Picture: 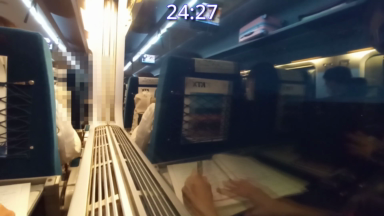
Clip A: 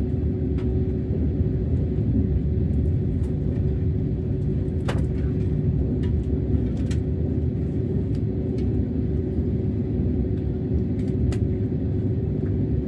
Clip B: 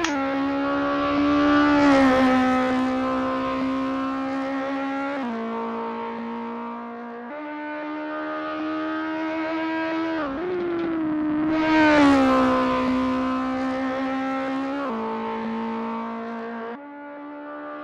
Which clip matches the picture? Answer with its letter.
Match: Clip A